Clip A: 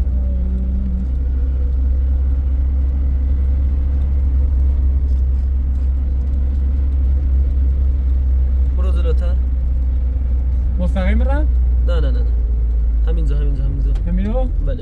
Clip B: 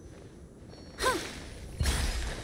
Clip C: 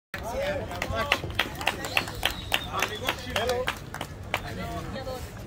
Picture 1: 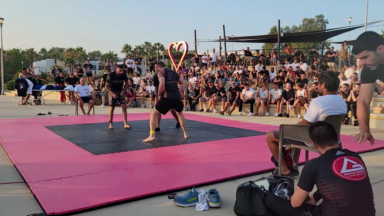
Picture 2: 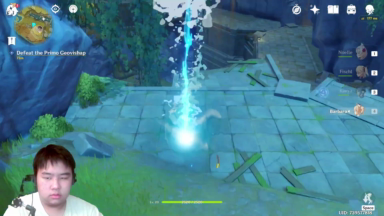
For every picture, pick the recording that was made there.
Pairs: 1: C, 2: B